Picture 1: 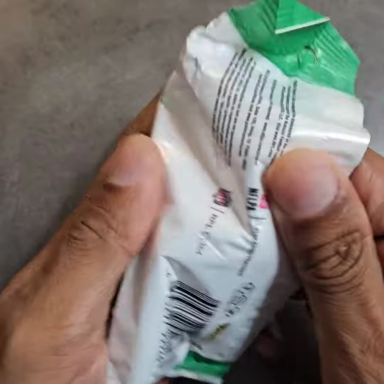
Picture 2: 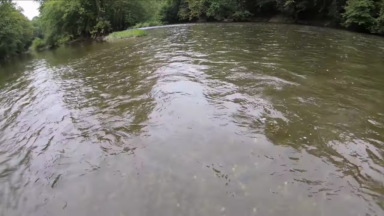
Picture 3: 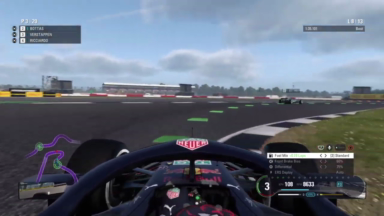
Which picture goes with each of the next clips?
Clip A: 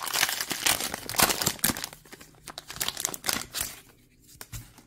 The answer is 1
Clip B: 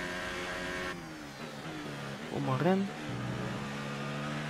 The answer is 3